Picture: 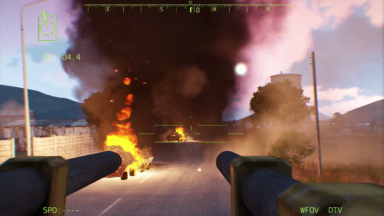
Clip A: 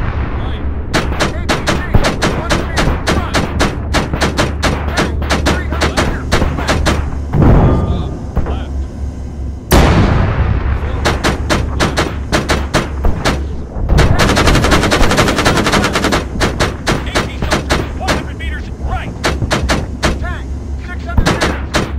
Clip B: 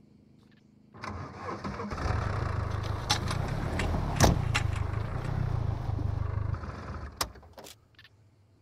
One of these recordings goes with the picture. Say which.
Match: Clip A